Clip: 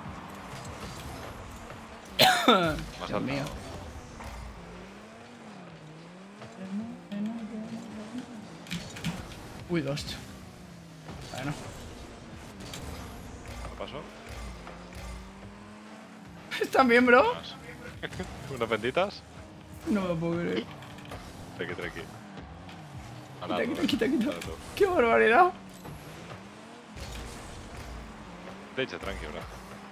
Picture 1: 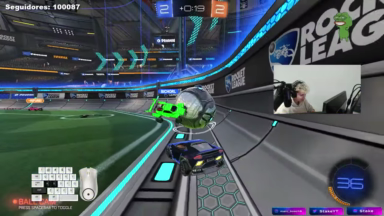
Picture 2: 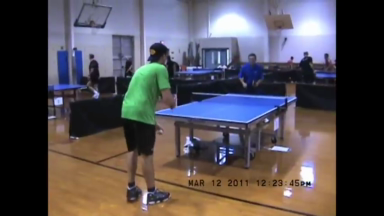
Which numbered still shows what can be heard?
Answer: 1